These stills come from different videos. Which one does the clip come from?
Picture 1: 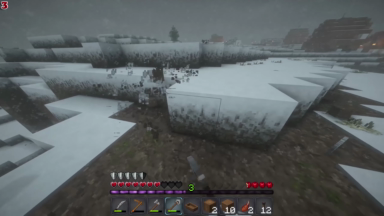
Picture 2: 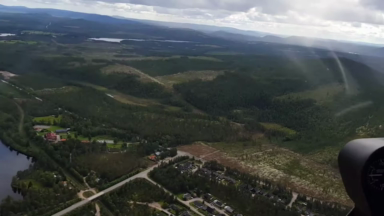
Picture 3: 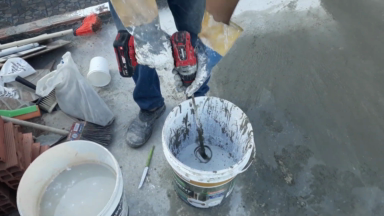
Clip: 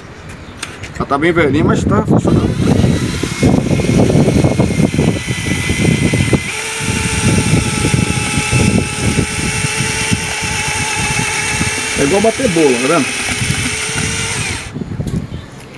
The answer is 3